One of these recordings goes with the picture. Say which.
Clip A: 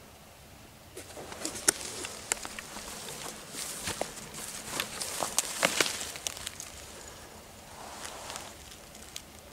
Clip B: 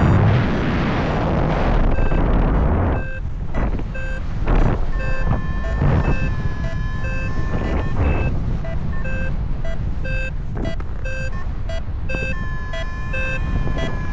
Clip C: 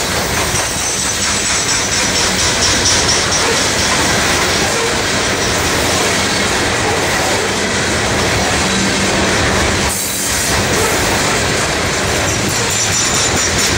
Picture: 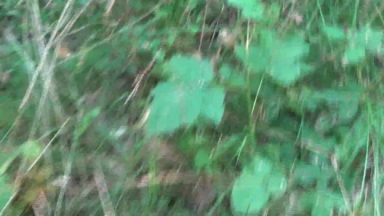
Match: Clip A